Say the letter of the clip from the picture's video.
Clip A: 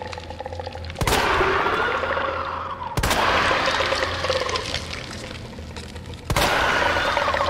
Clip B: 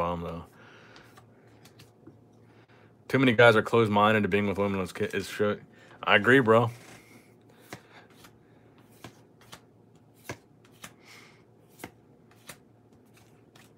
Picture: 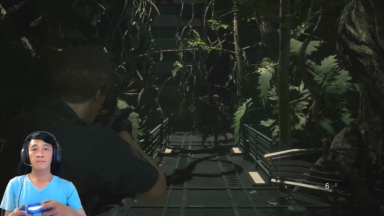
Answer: A